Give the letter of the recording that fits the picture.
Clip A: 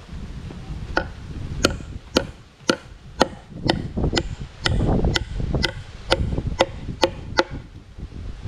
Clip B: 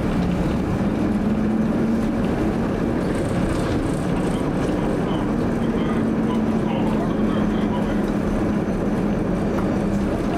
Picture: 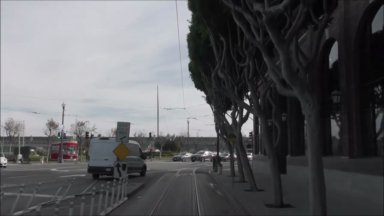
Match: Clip B